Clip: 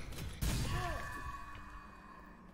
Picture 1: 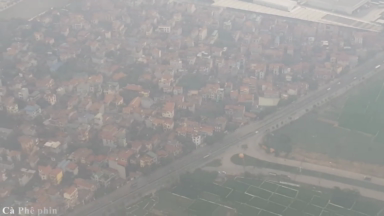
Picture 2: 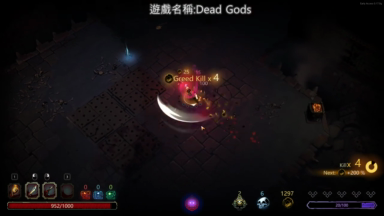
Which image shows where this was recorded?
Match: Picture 2